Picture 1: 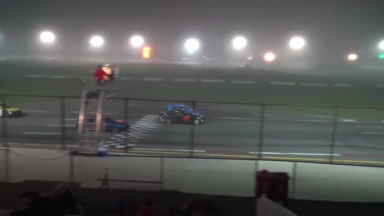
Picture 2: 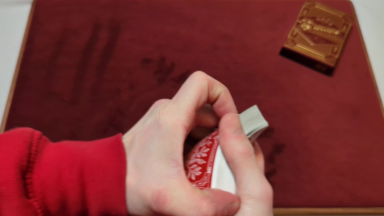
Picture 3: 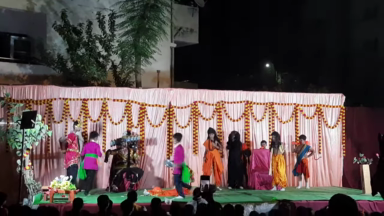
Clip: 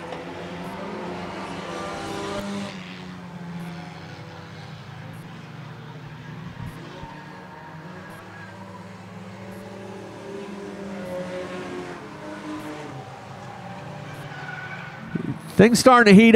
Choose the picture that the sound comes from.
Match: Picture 1